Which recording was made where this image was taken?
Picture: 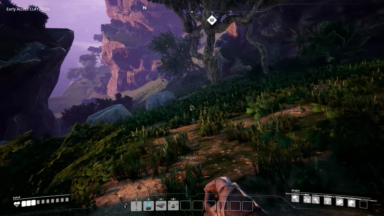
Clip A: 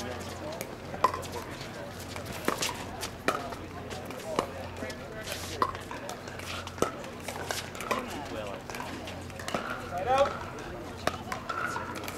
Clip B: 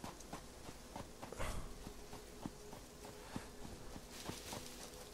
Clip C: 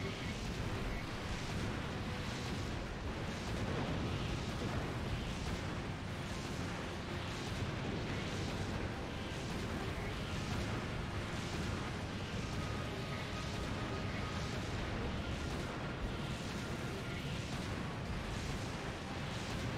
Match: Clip B